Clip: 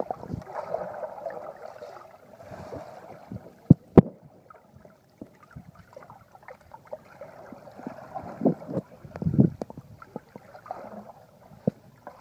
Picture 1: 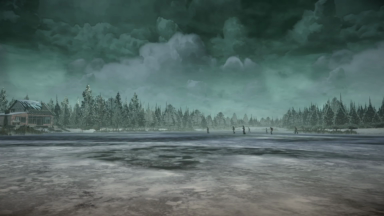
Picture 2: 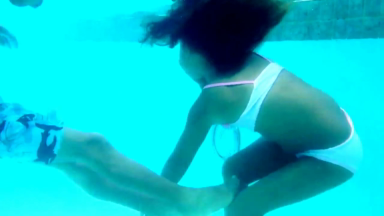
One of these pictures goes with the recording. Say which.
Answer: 2